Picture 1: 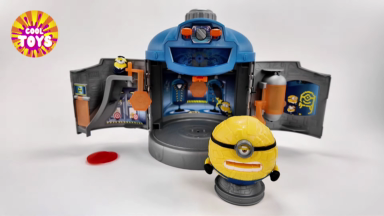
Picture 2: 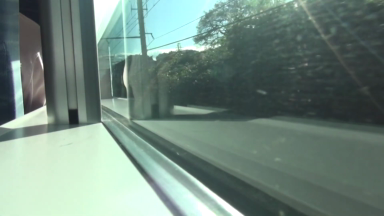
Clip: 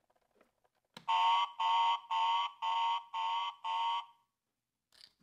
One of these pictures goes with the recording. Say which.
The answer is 1